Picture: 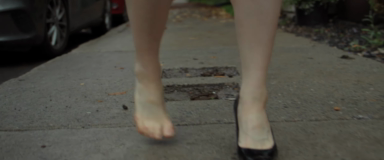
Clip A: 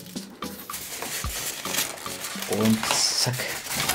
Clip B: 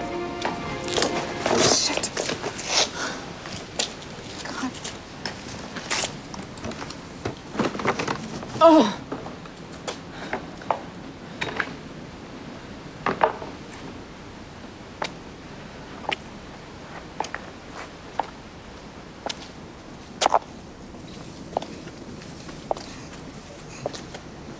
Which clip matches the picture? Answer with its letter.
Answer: B